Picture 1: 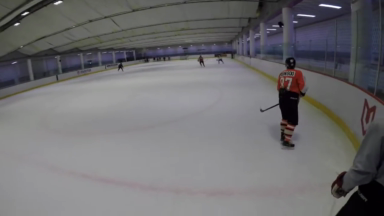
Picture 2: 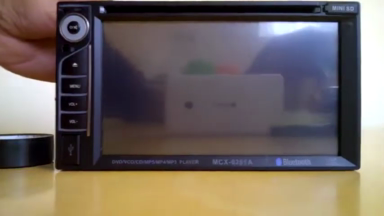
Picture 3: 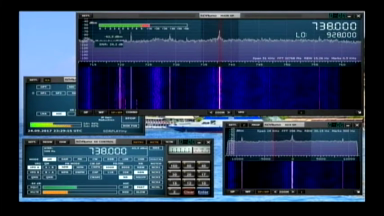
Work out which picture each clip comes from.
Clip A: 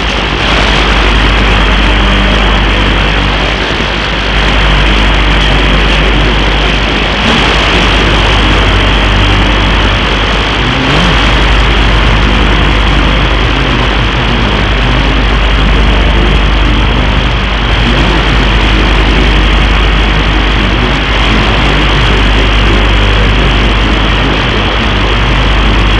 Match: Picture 3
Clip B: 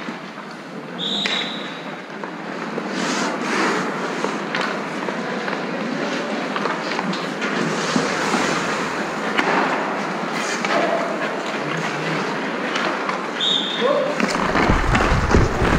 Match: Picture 1